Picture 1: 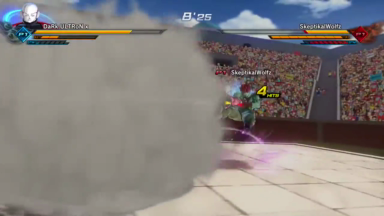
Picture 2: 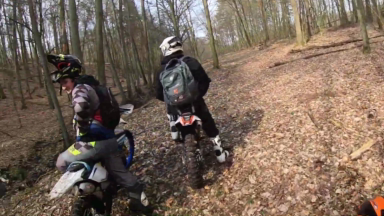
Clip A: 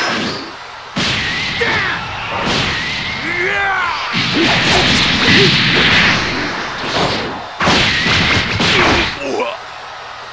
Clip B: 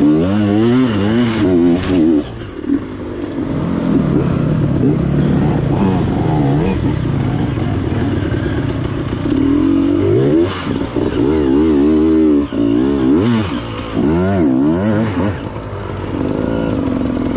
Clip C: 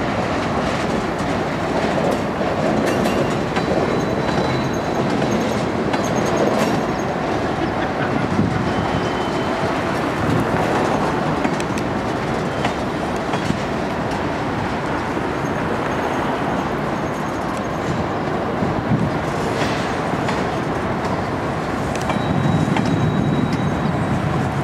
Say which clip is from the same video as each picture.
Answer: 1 A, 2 B